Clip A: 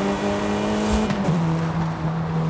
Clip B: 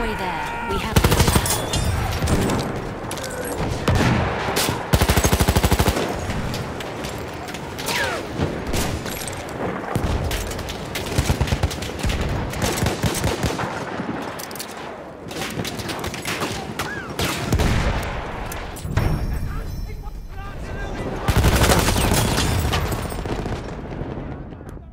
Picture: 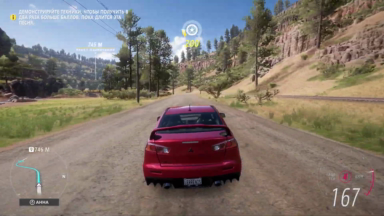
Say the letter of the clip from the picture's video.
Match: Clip A